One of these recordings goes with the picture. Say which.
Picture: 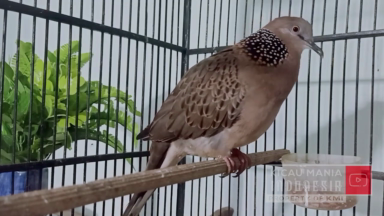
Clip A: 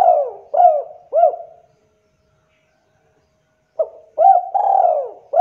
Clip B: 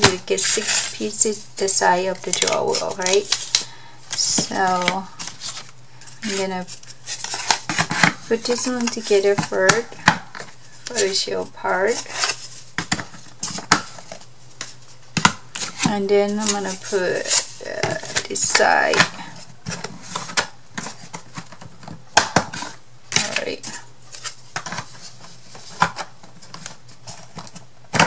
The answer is A